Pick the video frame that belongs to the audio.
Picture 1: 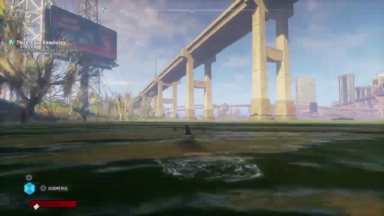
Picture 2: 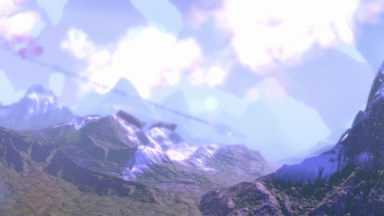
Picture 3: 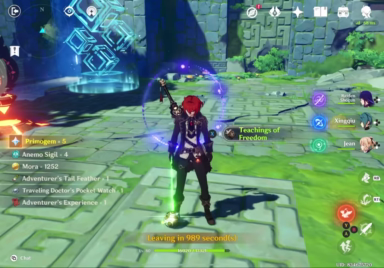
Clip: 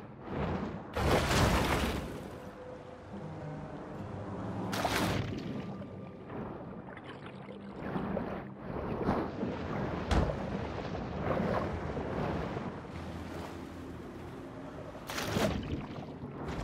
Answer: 1